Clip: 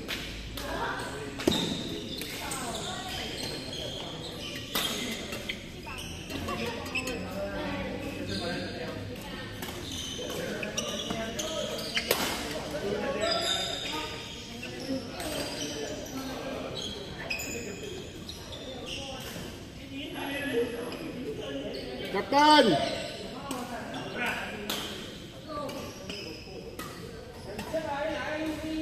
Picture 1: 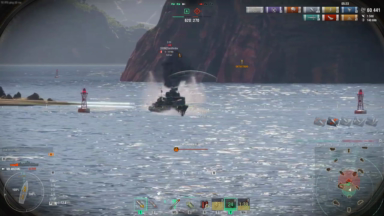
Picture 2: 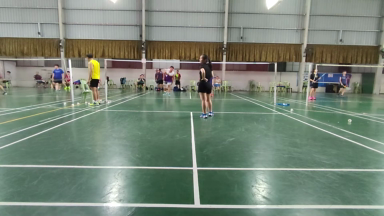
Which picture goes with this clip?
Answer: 2